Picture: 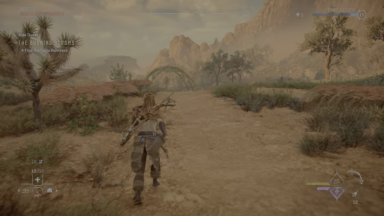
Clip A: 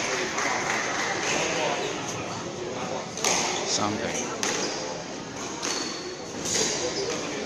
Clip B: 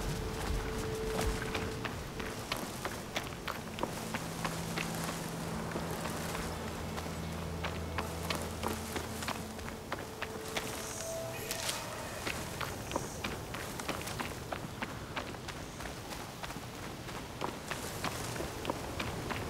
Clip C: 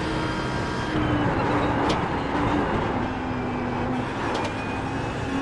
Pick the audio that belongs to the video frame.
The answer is B